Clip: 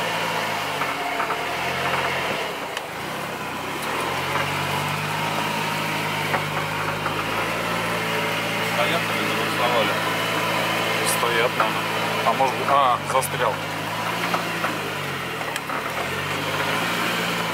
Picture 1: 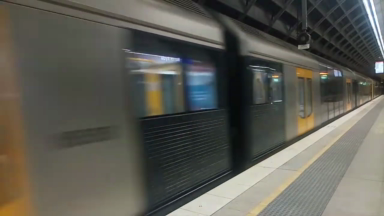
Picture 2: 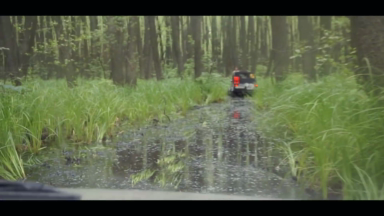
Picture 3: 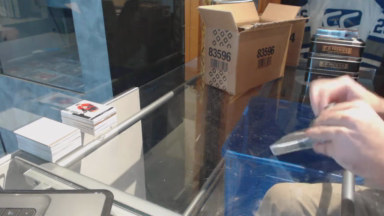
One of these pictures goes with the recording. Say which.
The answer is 2